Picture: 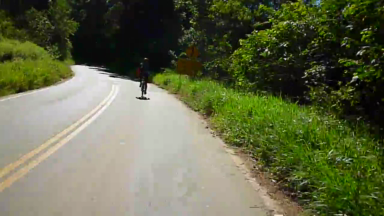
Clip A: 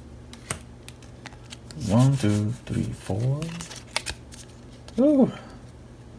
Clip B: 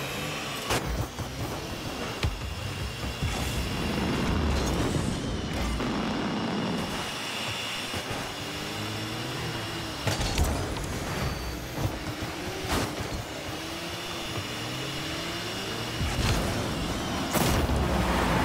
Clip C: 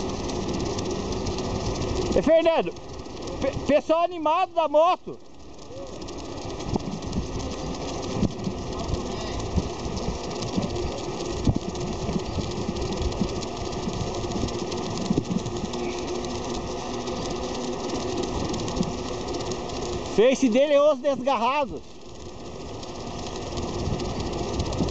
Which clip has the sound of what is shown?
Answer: C